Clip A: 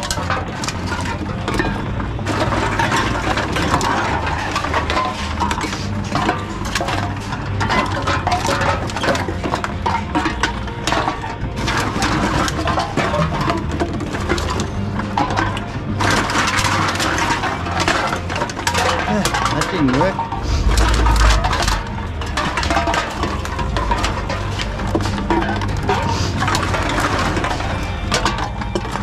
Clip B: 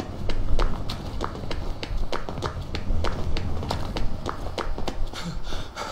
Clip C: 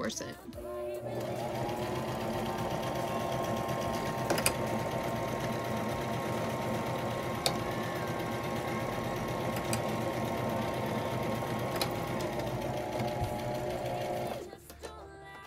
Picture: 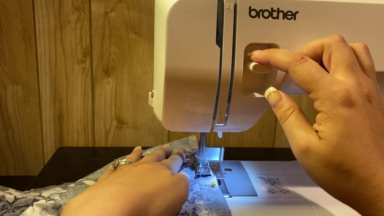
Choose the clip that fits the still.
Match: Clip C